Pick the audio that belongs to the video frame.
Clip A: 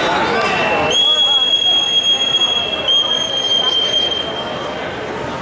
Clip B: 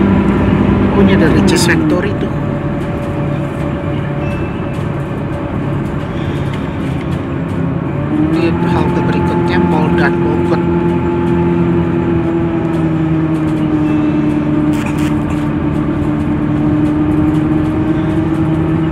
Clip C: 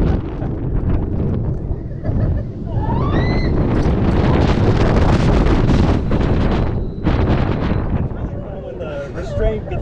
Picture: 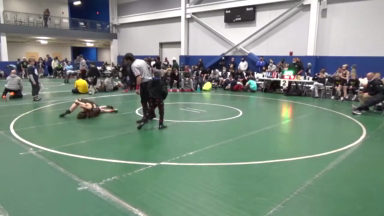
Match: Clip A